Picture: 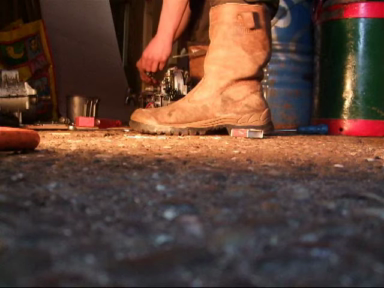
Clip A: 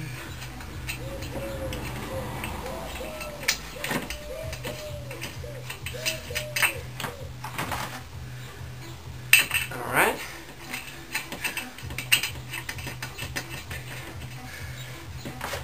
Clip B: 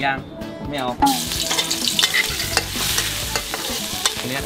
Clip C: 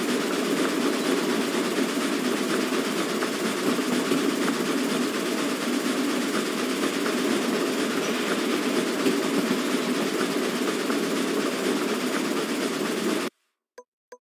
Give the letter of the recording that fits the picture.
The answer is A